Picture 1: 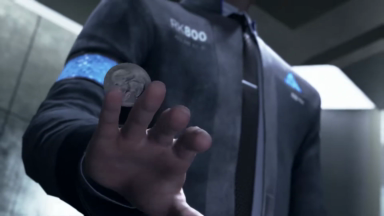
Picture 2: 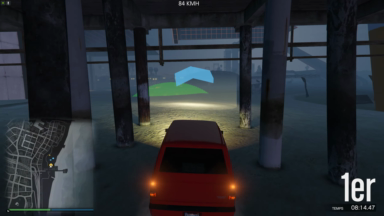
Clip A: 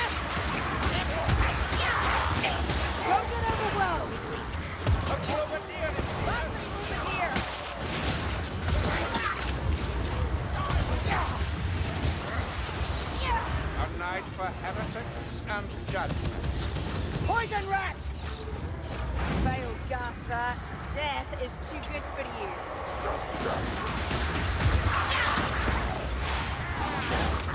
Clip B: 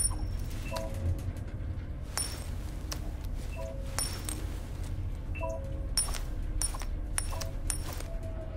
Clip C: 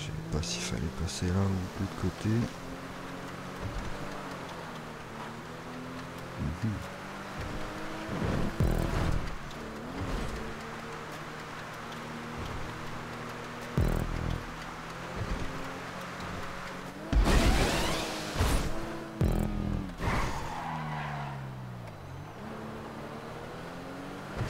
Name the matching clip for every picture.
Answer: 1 B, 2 C